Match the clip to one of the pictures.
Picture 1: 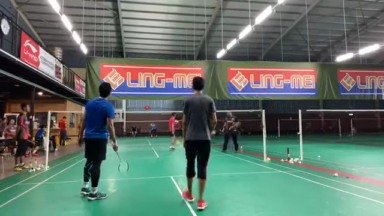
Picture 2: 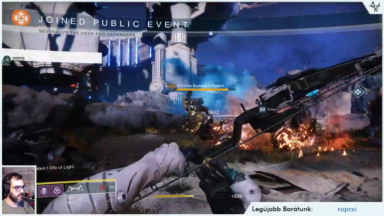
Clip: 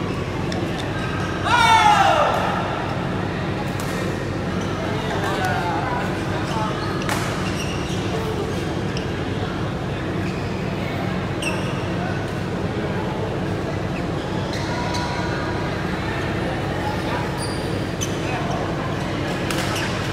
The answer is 1